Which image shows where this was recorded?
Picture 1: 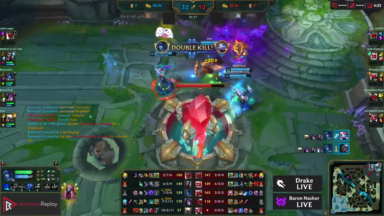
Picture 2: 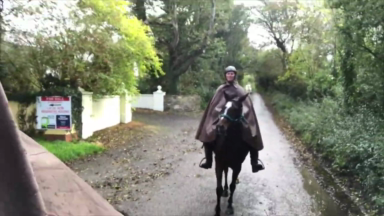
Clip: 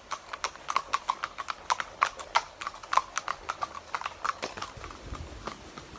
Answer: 2